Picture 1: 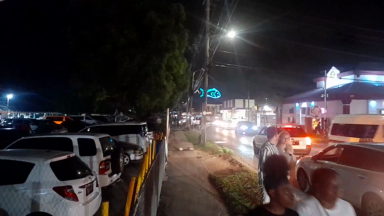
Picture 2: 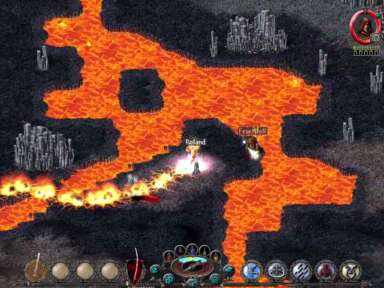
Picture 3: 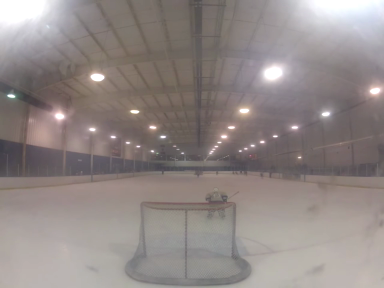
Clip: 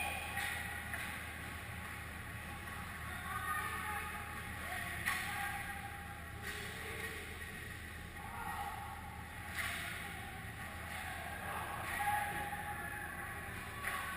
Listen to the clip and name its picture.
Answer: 3